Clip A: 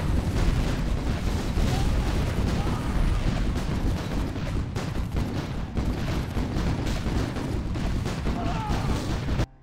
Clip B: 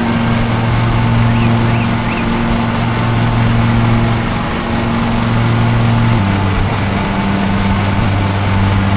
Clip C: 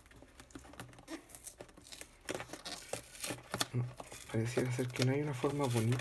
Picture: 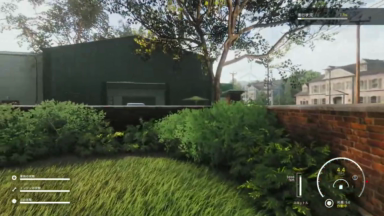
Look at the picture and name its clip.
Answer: B